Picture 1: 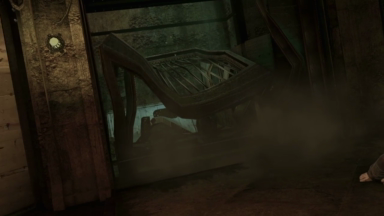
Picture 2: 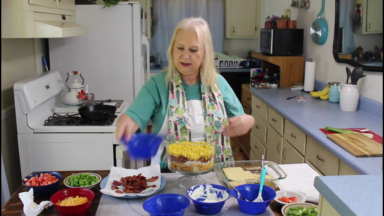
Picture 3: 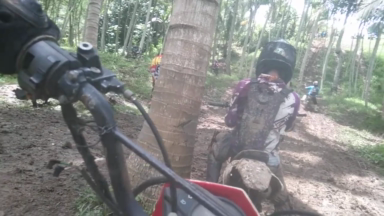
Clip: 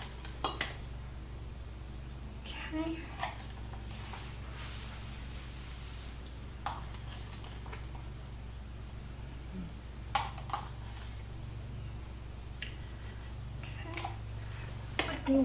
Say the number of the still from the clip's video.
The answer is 2